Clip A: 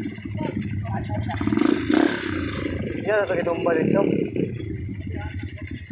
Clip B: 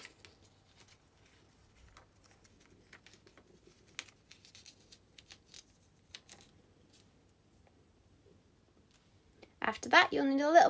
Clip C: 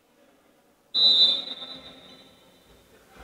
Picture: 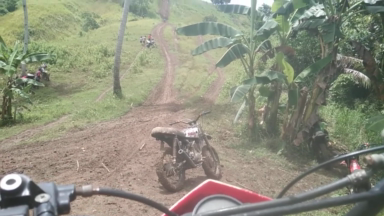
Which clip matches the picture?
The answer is A